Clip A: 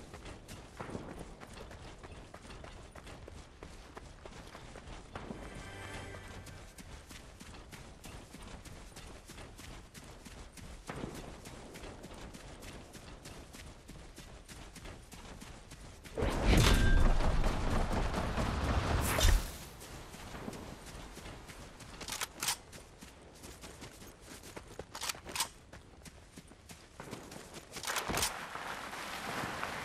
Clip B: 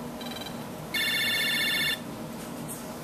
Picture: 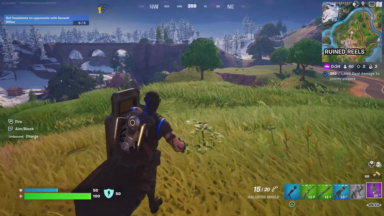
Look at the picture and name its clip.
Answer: A